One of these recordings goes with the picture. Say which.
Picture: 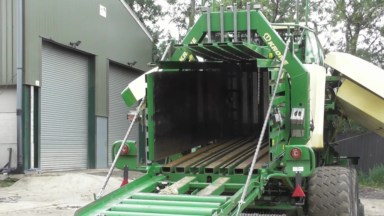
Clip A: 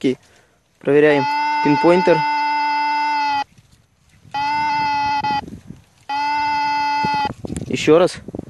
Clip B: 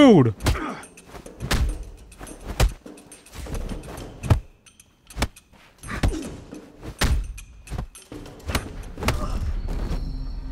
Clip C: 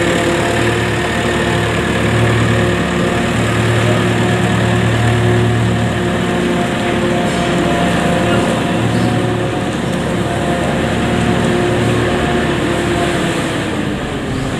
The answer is C